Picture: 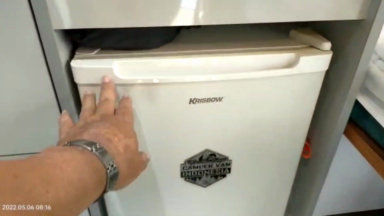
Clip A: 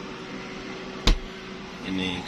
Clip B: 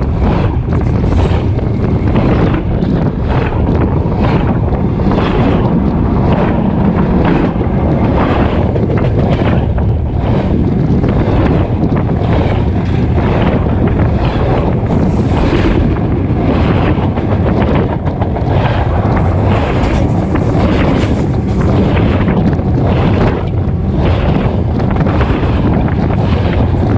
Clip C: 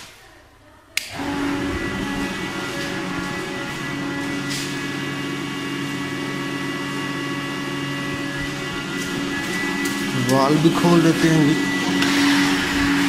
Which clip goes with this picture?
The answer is A